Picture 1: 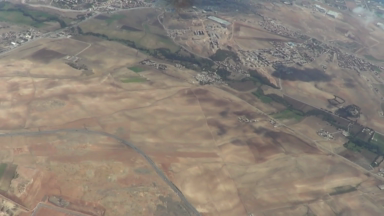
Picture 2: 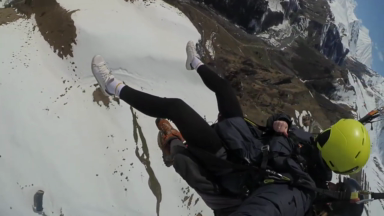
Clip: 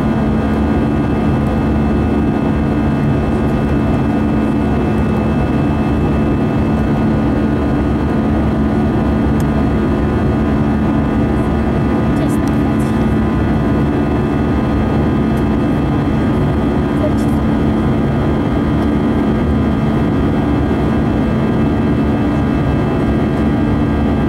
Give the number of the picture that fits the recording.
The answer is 1